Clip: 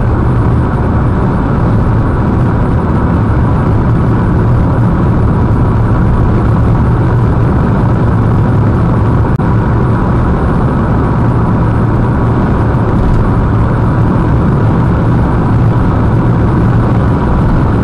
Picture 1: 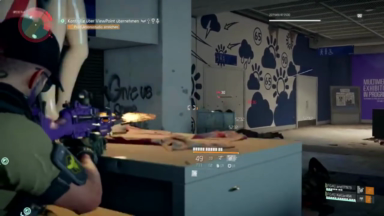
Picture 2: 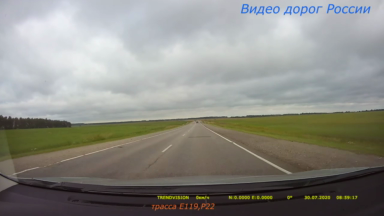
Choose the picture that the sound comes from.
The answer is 2